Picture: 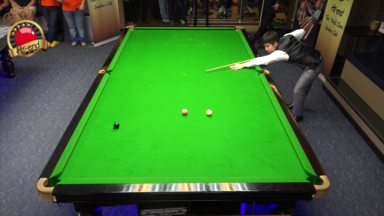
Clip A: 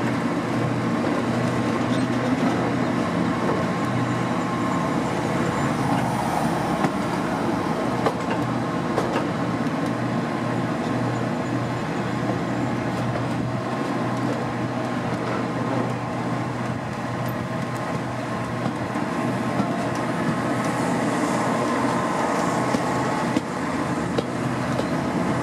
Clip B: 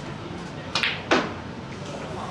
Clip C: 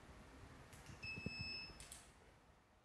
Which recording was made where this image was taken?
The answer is B